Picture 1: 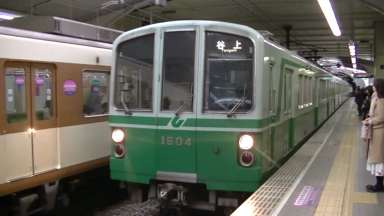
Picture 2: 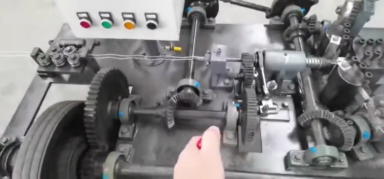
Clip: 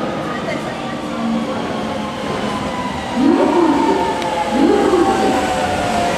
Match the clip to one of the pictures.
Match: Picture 1